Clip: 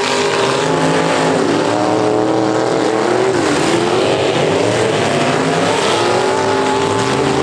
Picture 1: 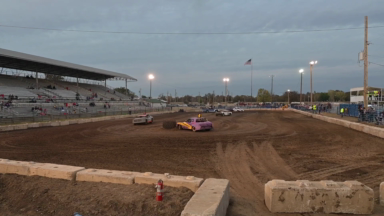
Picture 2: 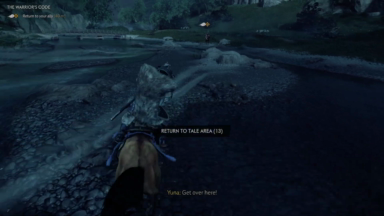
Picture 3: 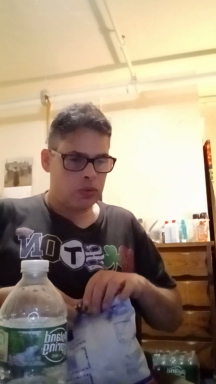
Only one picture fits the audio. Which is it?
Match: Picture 1